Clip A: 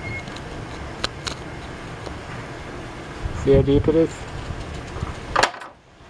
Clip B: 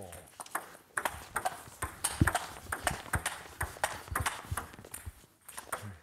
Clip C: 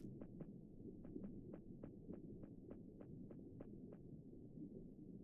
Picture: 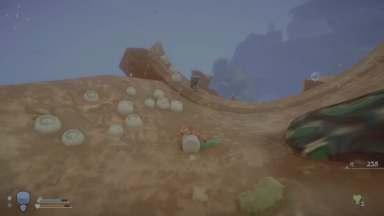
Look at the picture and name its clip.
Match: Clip C